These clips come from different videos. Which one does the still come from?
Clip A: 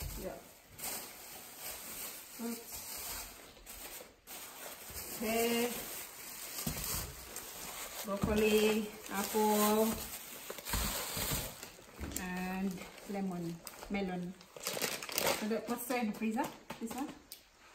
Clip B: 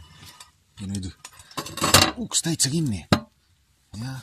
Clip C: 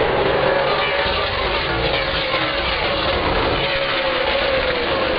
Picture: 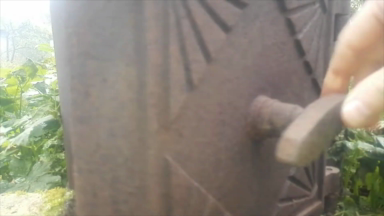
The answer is B